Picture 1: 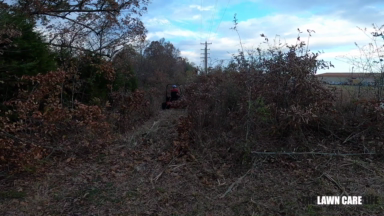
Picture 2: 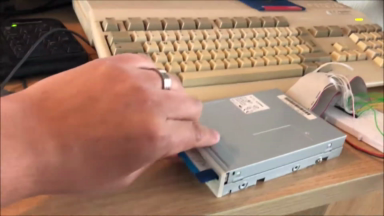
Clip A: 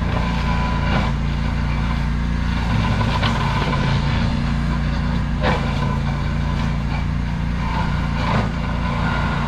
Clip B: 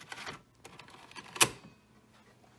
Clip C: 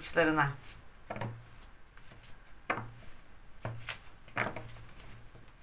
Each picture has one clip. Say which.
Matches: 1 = A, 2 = B